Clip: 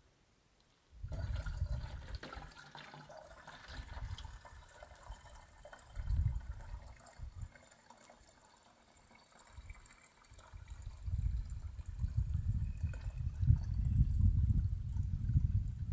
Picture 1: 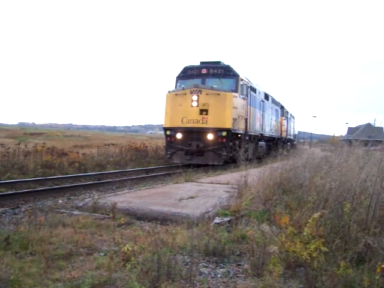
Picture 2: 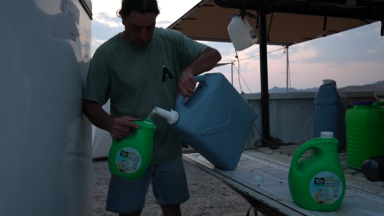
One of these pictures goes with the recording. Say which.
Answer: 2